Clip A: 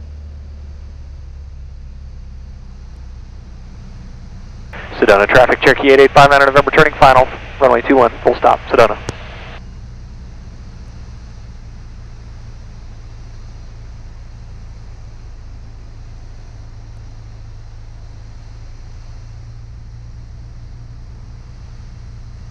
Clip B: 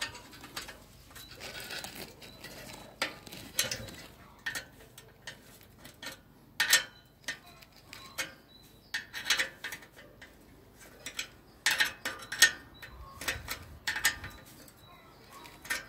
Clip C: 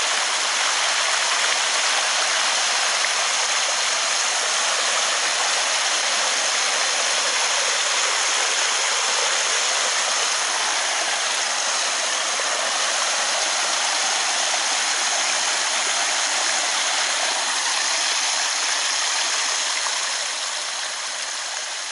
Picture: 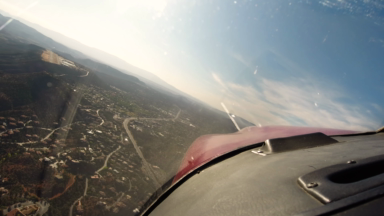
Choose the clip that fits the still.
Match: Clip A